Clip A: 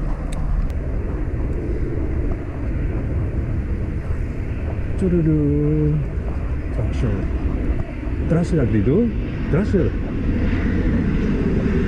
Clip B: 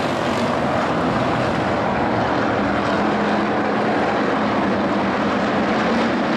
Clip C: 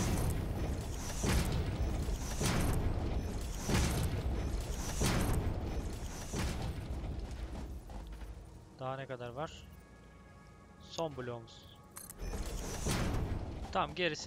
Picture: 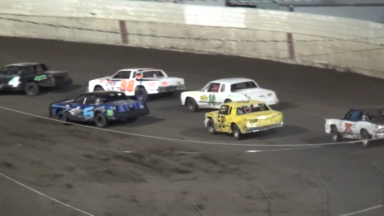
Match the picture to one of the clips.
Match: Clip B